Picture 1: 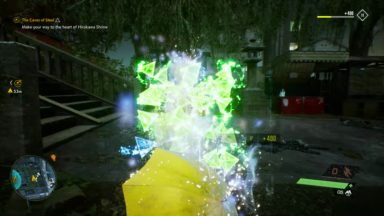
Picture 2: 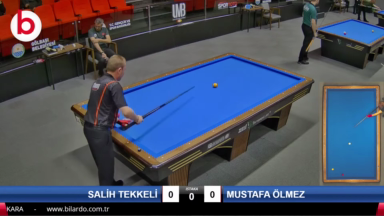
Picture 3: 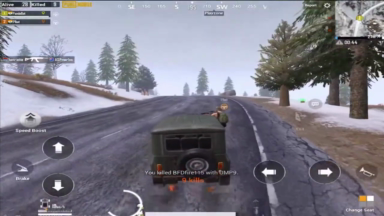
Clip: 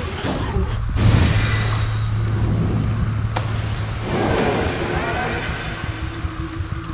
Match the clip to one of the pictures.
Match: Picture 1